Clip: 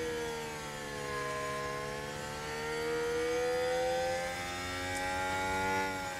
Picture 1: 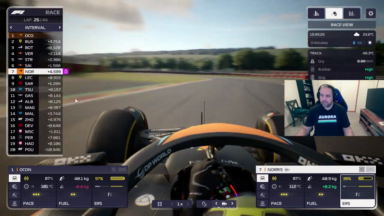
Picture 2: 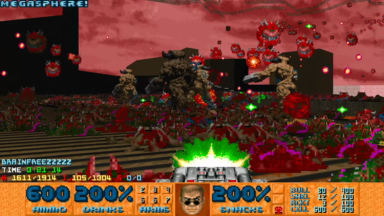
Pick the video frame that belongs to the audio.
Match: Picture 1